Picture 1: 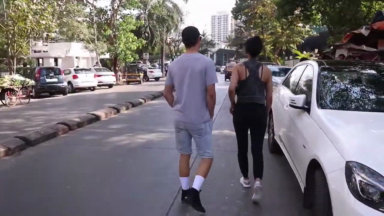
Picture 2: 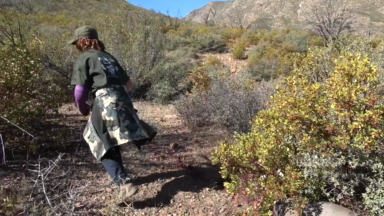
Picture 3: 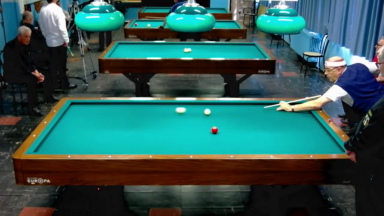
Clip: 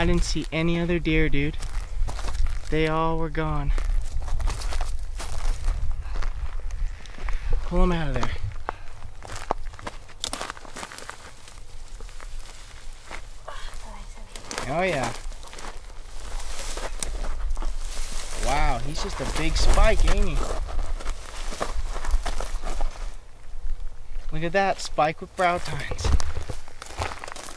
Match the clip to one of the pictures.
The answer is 2